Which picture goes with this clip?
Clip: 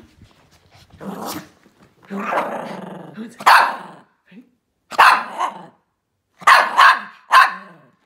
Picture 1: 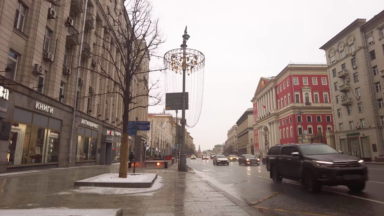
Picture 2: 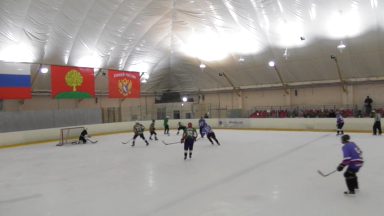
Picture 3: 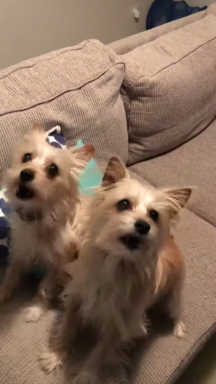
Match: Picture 3